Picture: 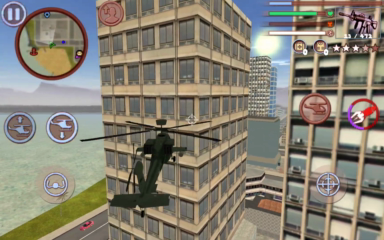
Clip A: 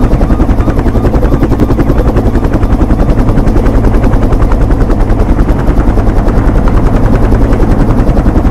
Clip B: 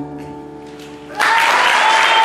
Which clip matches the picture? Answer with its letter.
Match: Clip A